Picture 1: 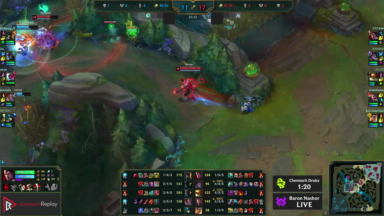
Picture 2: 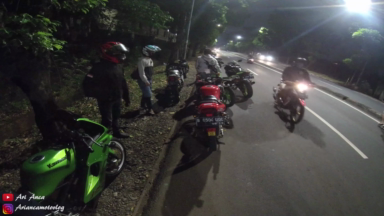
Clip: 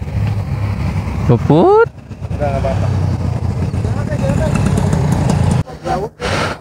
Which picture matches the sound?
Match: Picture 2